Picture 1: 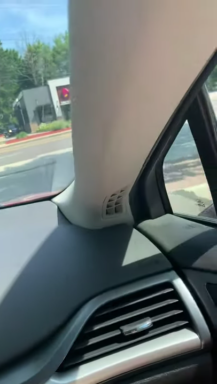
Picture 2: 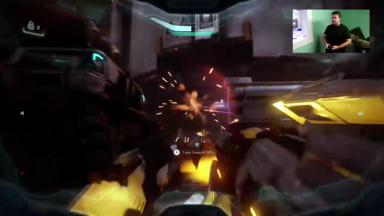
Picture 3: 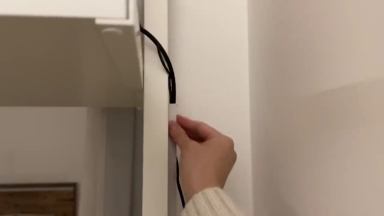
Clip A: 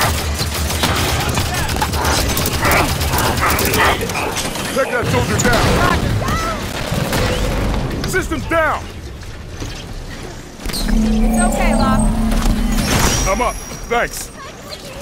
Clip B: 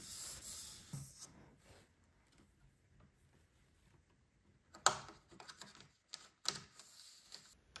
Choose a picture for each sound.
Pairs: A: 2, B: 3